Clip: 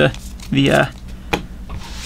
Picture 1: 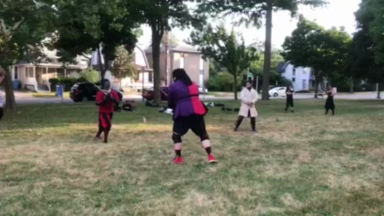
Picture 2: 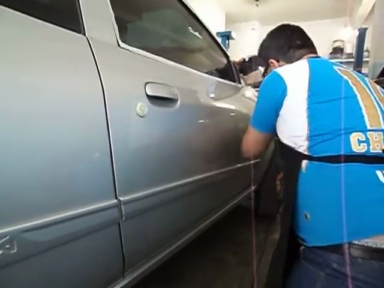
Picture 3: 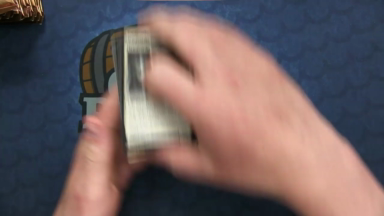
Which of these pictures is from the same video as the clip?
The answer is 3